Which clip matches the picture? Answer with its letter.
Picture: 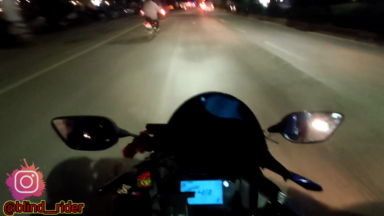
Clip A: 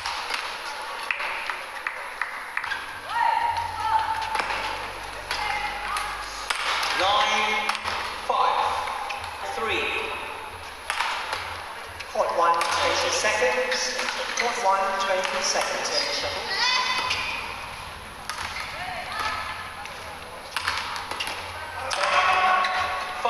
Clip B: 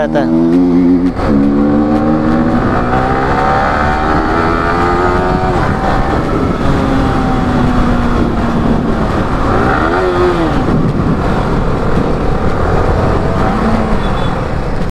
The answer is B